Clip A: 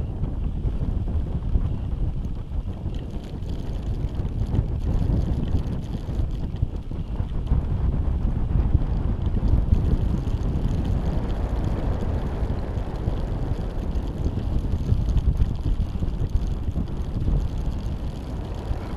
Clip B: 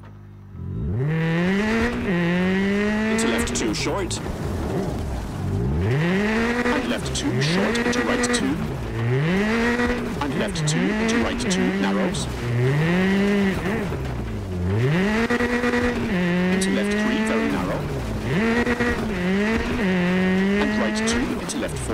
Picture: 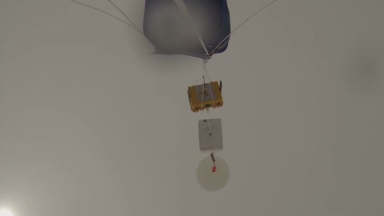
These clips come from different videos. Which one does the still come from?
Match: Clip A